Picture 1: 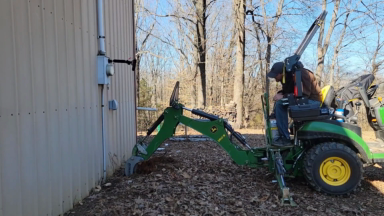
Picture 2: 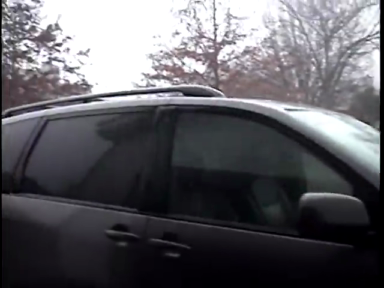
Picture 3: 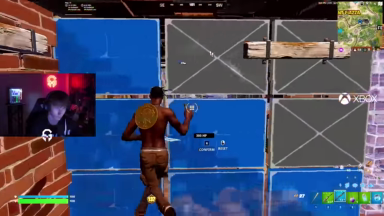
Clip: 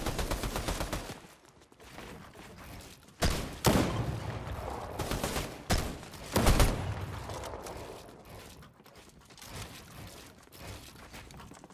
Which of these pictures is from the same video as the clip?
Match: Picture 3